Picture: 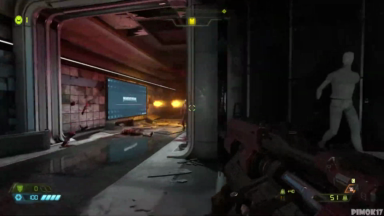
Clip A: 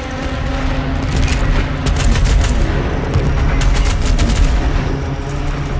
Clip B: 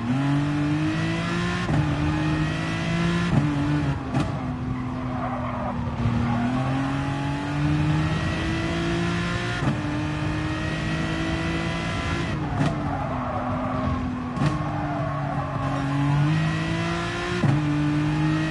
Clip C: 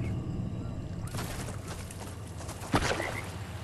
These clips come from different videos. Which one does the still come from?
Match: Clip A